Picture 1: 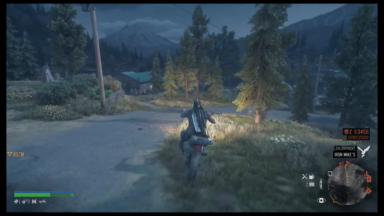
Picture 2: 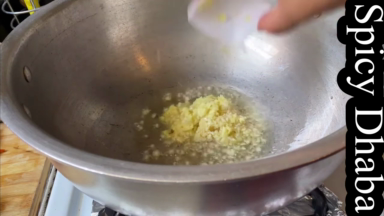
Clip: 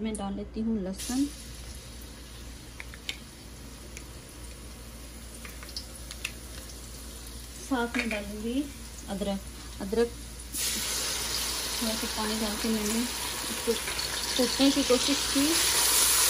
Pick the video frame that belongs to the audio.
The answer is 2